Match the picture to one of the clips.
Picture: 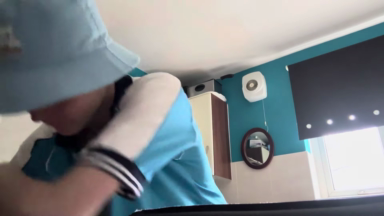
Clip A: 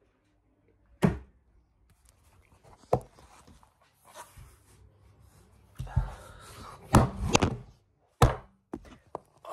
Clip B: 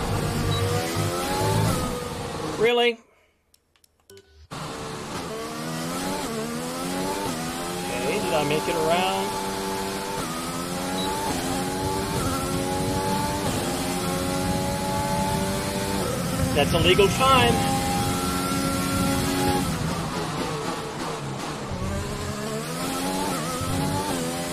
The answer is A